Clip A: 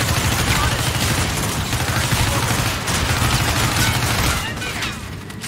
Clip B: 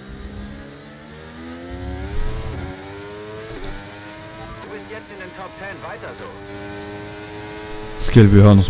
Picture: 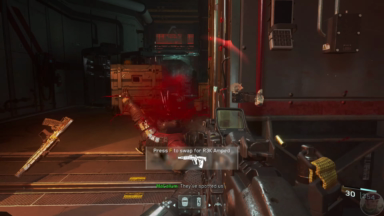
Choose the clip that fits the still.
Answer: A